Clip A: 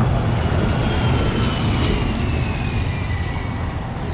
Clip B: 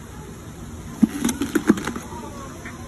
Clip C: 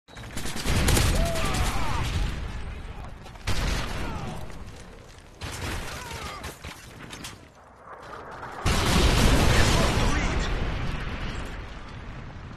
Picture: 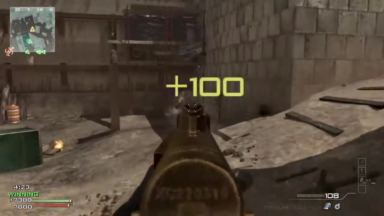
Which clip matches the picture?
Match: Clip C